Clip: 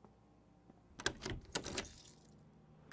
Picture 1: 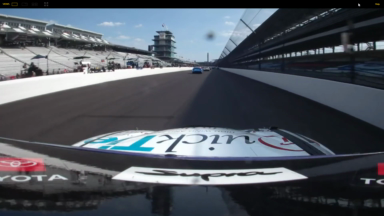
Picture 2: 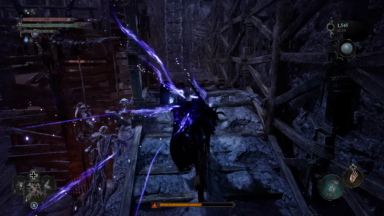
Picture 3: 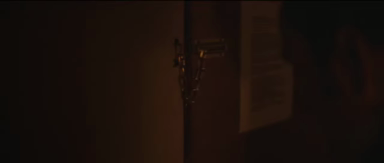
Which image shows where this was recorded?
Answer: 3